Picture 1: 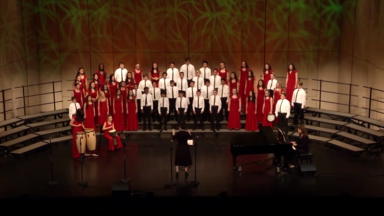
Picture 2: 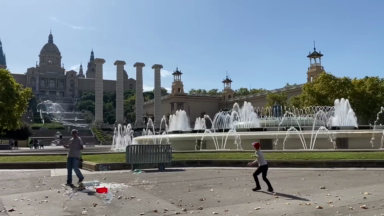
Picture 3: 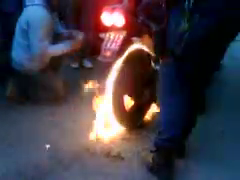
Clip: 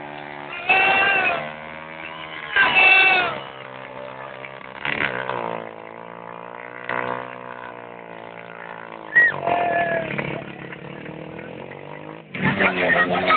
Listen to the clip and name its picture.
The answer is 3